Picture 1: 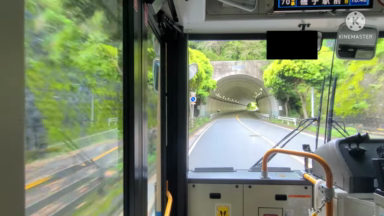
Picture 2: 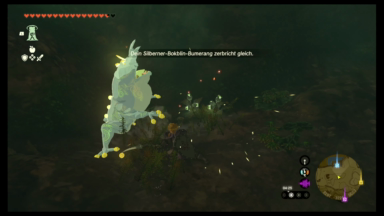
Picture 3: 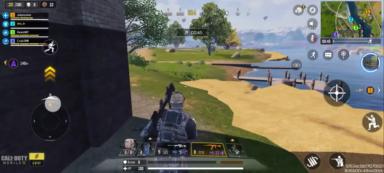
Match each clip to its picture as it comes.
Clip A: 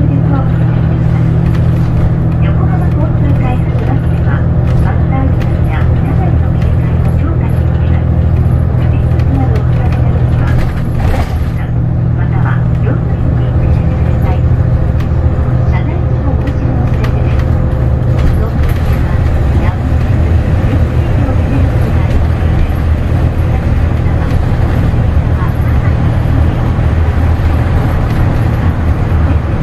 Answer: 1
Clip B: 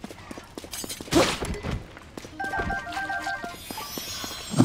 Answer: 2